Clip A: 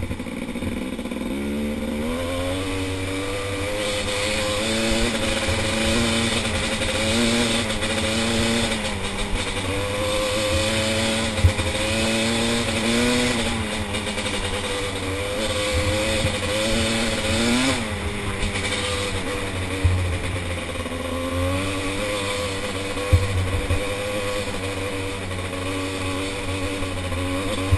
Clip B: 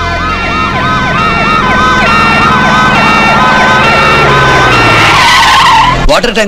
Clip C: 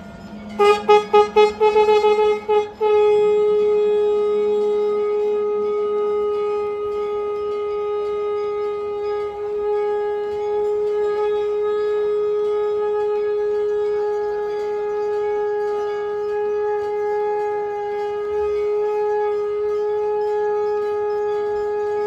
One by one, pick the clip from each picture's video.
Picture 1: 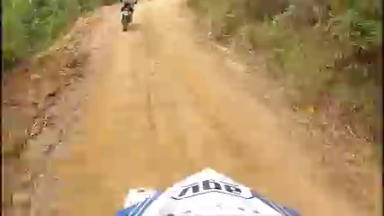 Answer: A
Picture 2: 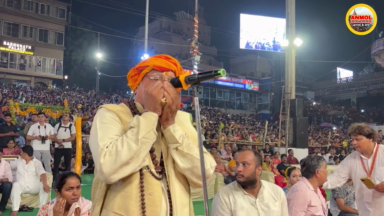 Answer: C